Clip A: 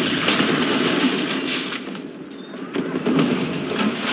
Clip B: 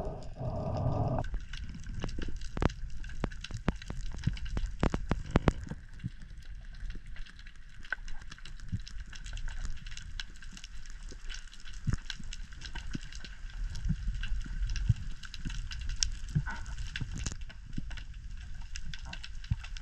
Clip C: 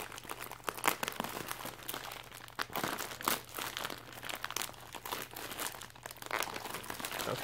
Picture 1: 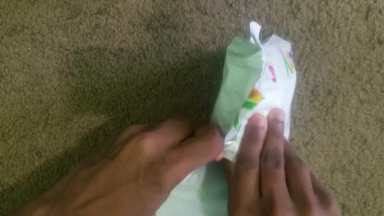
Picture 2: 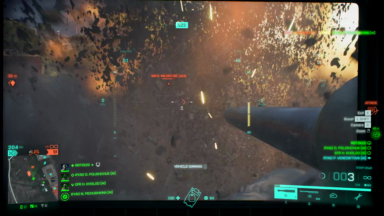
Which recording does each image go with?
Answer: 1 C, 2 A